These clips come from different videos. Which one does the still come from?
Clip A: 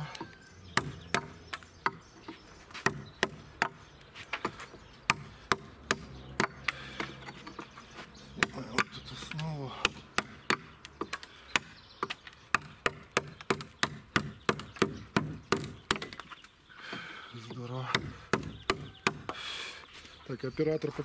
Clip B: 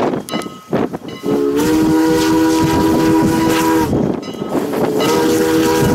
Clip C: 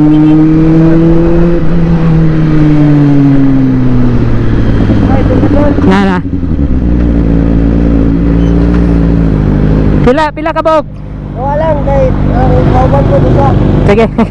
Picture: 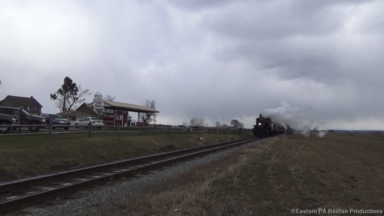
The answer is B